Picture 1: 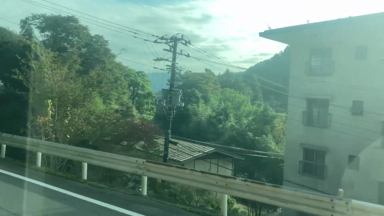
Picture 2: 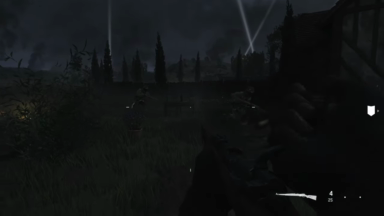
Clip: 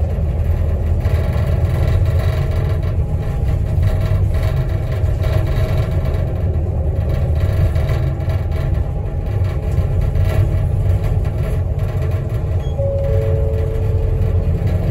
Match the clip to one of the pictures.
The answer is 1